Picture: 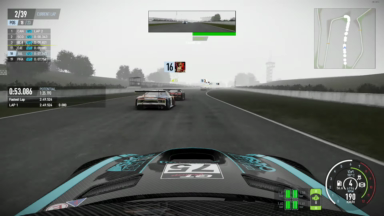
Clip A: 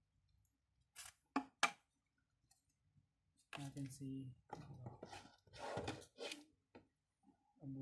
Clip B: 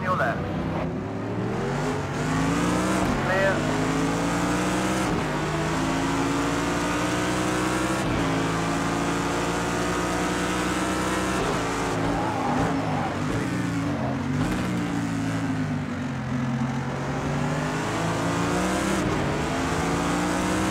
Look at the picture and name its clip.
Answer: B